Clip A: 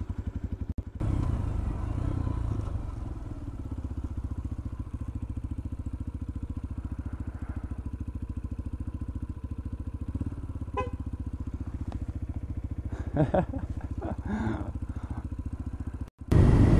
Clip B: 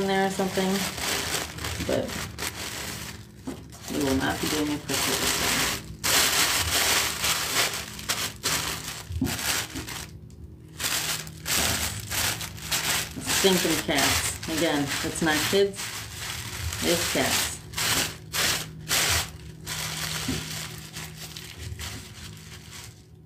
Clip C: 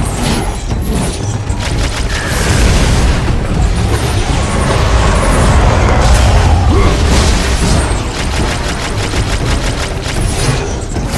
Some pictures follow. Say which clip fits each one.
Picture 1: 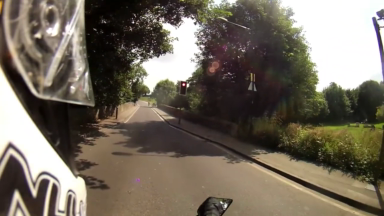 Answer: A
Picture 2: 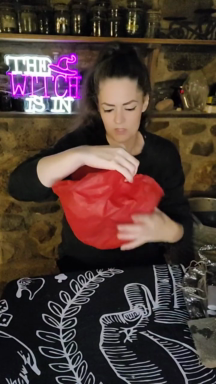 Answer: B